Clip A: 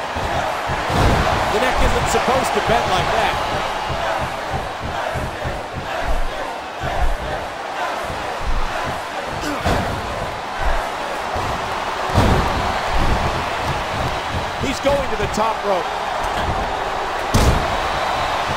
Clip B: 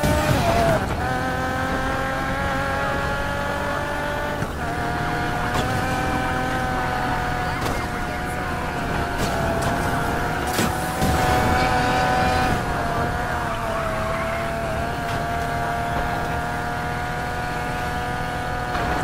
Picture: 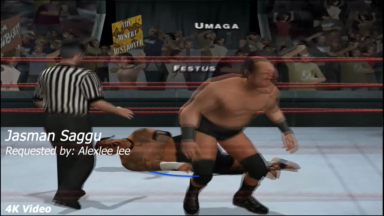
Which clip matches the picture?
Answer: A